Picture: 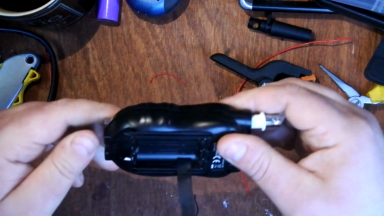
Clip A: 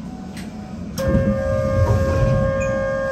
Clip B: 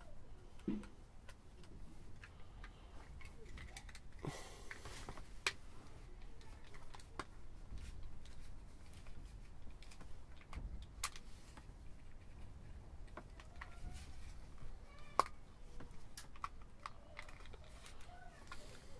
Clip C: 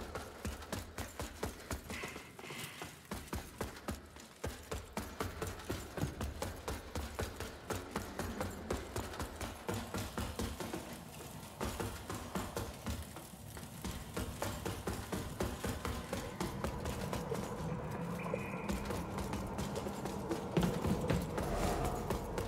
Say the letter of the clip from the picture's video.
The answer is B